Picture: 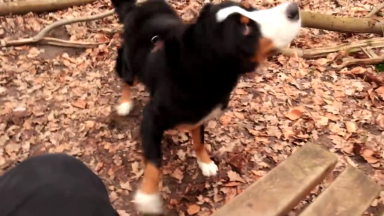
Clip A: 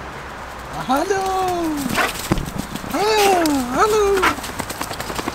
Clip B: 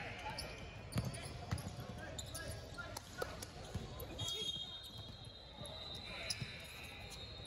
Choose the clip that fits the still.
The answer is A